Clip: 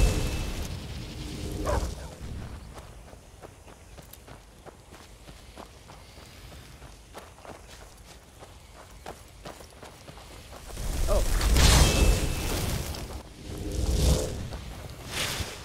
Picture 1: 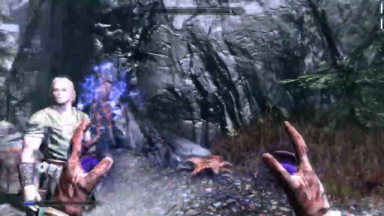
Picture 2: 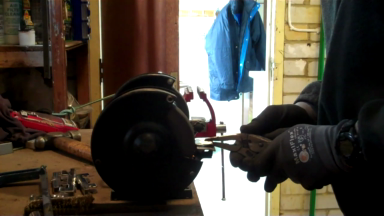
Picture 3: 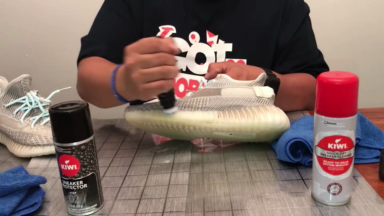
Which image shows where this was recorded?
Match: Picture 1